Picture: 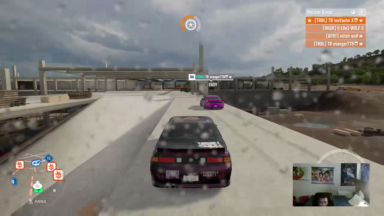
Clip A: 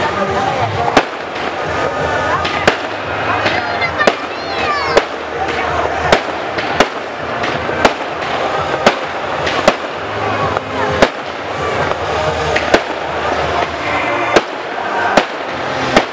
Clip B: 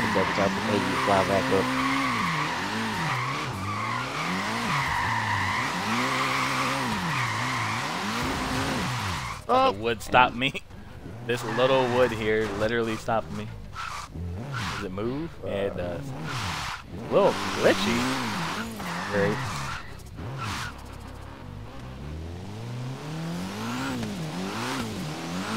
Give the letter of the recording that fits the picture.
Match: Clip B